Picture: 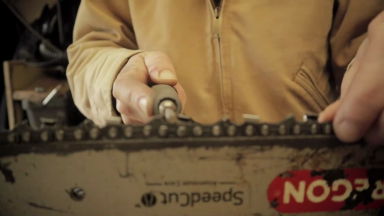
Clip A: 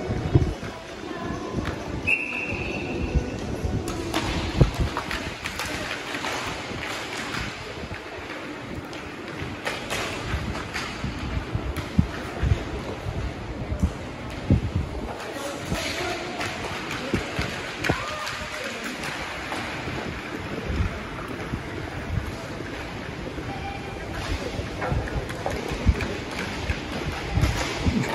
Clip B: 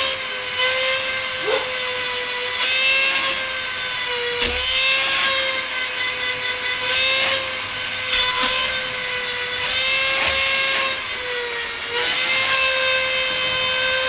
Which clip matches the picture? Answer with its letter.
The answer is B